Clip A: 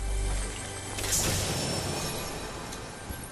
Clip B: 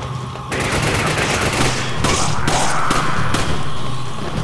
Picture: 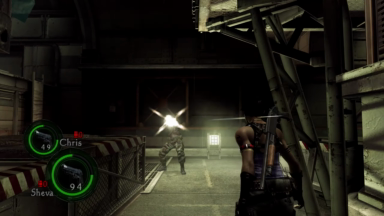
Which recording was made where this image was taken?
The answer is B